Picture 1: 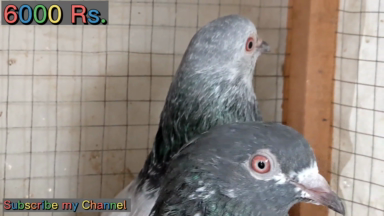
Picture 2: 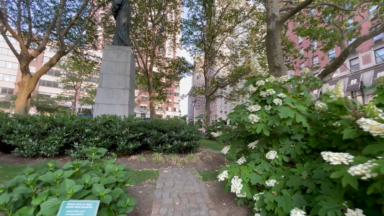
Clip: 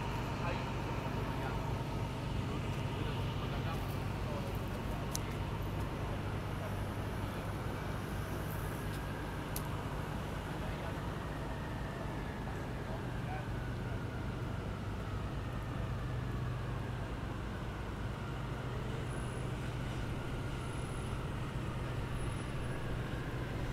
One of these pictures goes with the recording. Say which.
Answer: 2